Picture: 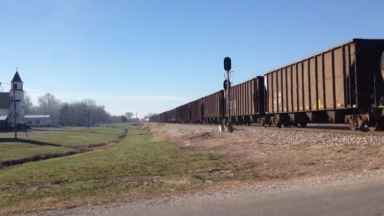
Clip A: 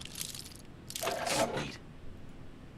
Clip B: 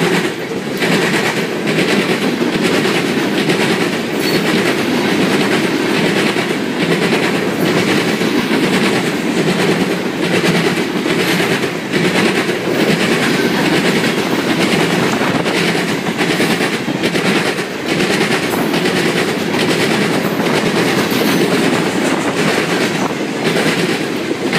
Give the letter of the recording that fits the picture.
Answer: B